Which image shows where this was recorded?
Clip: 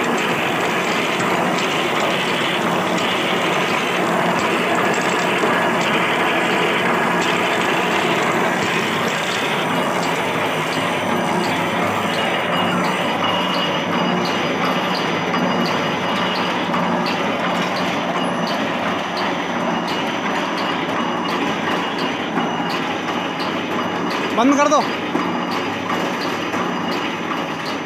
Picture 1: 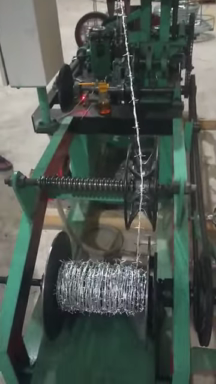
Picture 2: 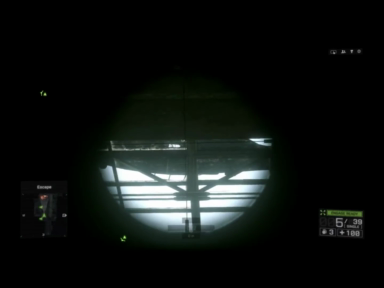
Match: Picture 1